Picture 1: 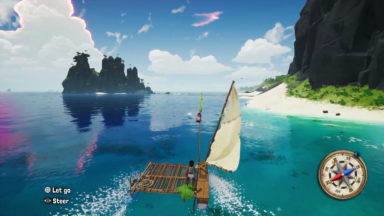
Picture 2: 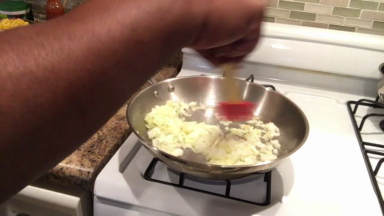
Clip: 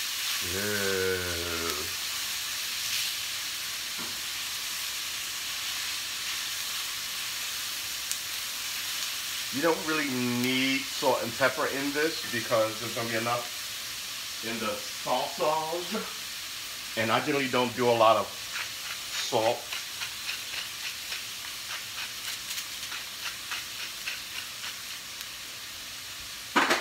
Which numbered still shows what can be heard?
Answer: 2